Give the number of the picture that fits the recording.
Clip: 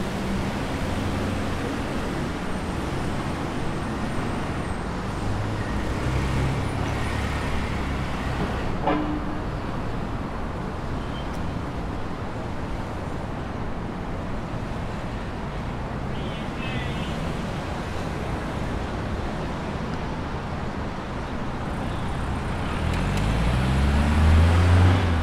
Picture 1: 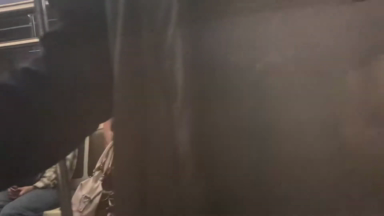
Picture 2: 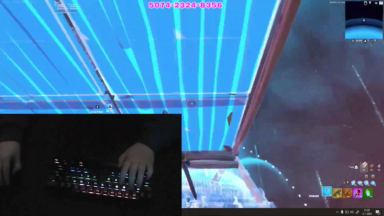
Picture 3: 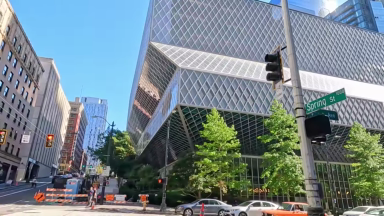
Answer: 3